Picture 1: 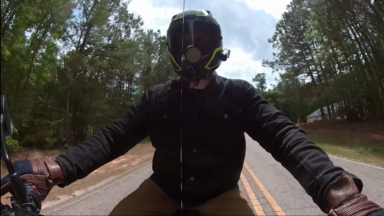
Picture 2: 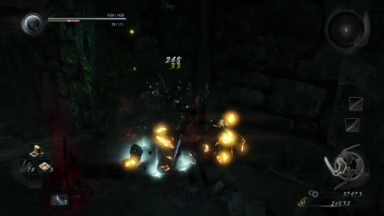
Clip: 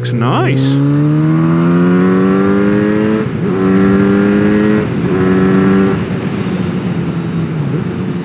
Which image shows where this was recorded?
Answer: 1